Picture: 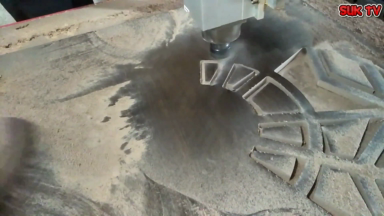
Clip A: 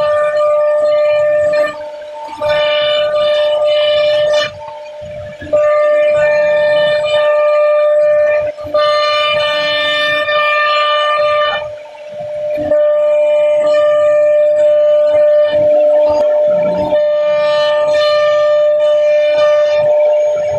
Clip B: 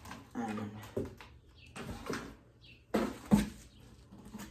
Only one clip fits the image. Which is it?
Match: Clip A